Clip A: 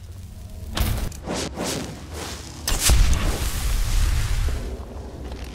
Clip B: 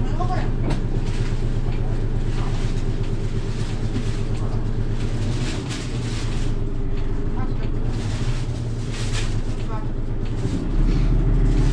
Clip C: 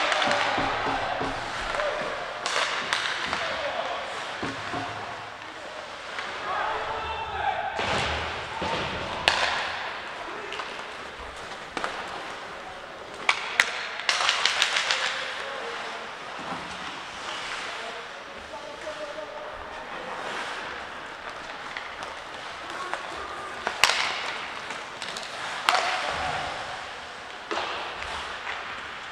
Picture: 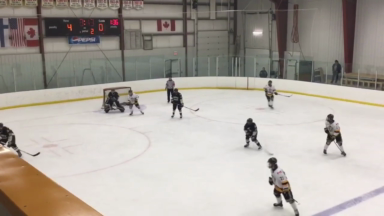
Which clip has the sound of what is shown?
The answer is C